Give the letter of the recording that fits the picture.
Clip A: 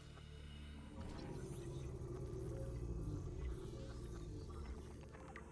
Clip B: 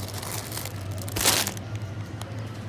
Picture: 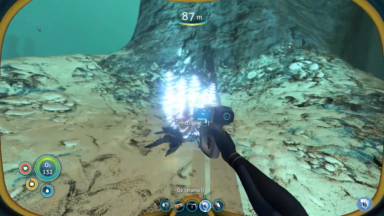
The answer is A